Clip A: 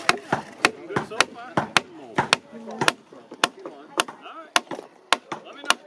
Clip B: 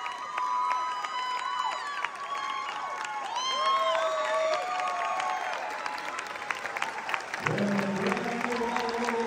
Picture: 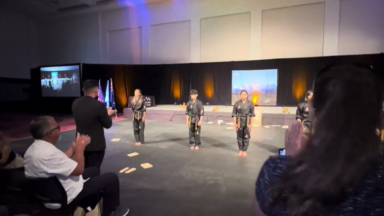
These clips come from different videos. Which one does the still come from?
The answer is B